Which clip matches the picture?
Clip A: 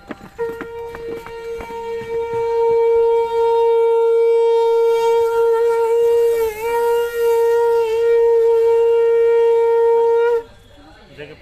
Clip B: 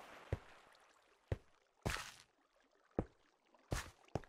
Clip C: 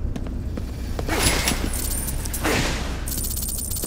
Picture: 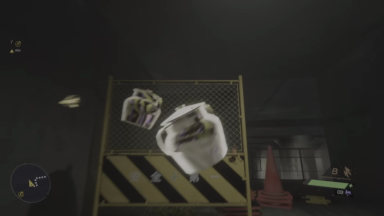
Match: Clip C